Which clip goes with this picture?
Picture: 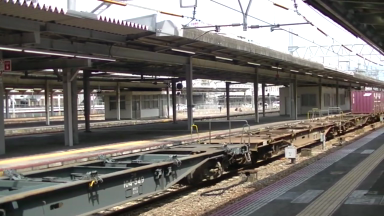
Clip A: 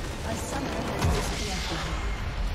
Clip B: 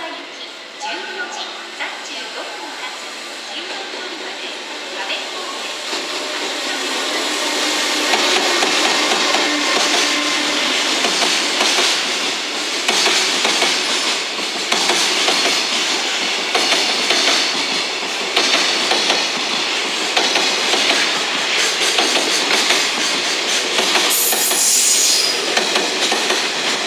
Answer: B